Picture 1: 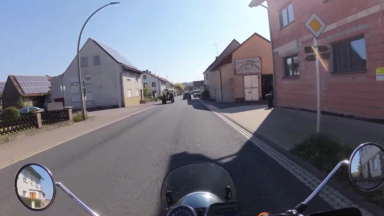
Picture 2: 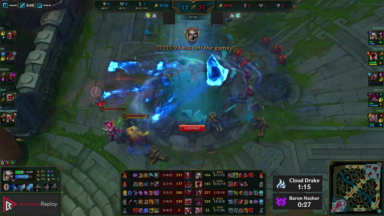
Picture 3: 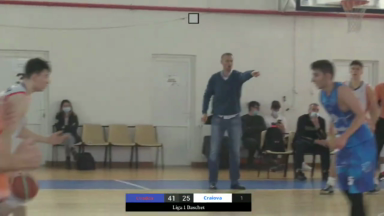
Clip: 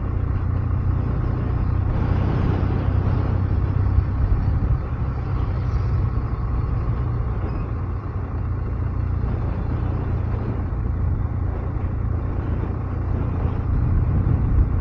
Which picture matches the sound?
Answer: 1